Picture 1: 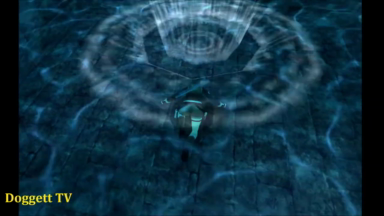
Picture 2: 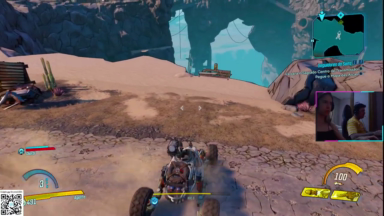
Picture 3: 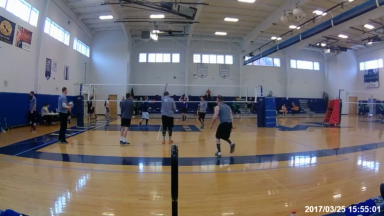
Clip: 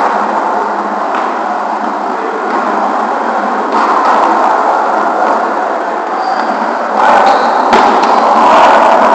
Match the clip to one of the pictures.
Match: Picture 3